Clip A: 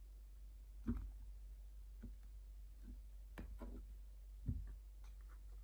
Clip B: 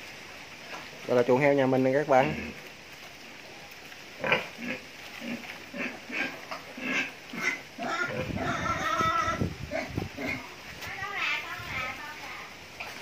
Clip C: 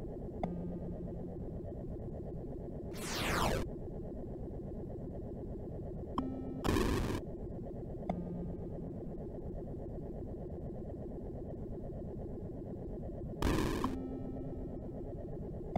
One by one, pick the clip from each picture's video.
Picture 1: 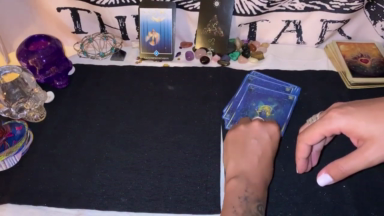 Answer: A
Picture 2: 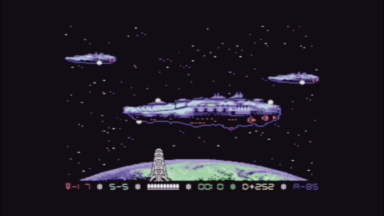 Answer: C